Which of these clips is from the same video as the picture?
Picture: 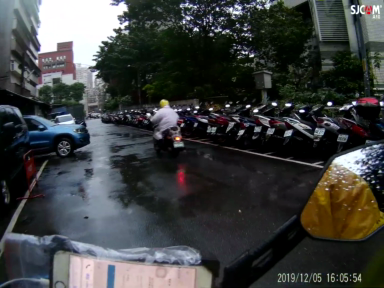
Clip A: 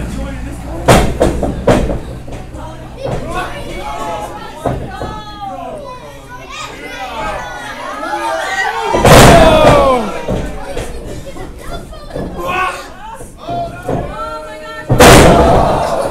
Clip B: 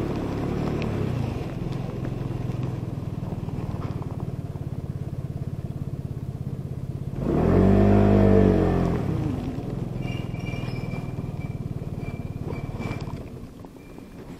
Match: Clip B